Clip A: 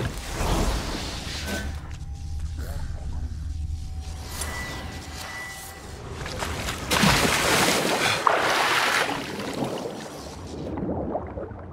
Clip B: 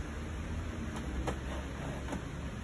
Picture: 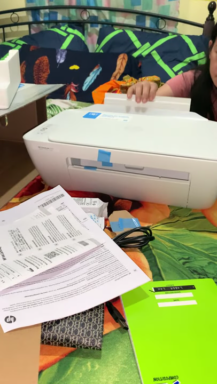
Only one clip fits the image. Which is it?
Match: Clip B